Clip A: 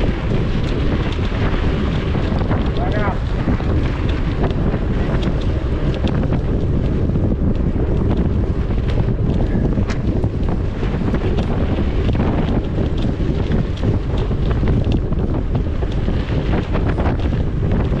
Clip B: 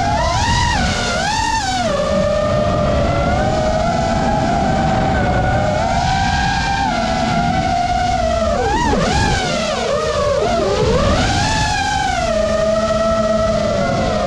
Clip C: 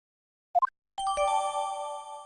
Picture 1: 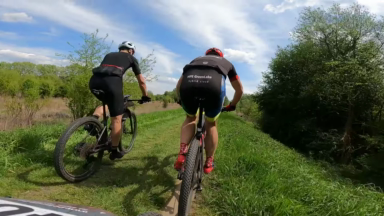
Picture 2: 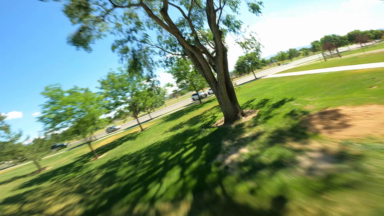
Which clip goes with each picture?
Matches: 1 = A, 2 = B